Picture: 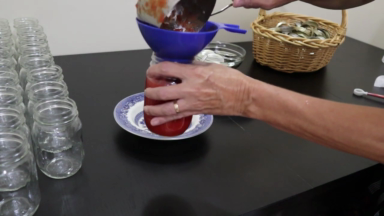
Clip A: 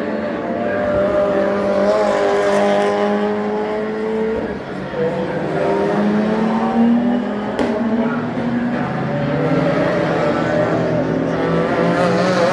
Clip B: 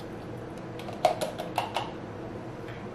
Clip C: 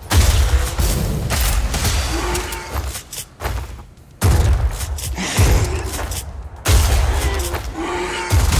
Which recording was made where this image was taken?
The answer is B